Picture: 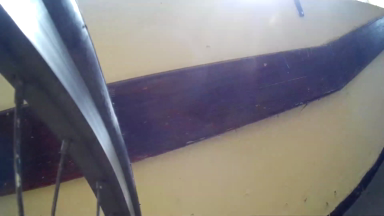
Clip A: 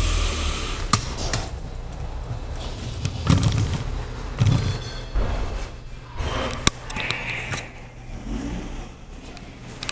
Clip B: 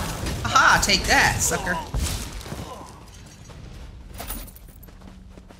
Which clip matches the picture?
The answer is A